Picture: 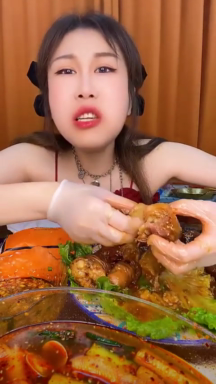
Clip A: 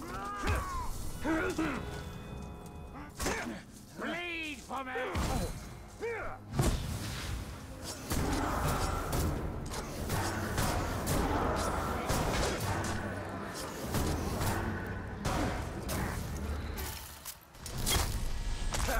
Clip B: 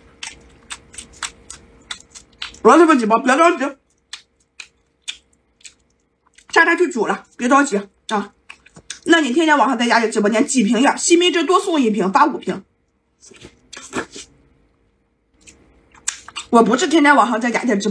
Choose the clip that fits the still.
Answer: B